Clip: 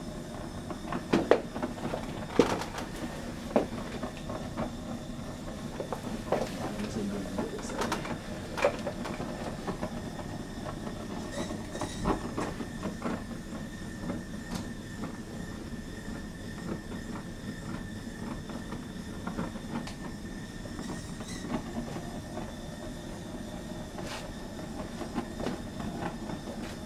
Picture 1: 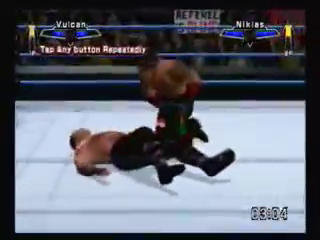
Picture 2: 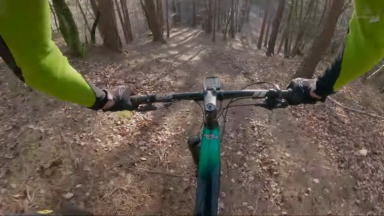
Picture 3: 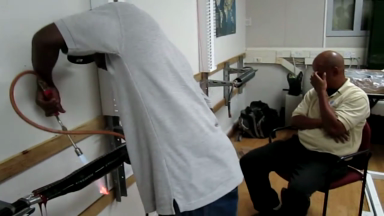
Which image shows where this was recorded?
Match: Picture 3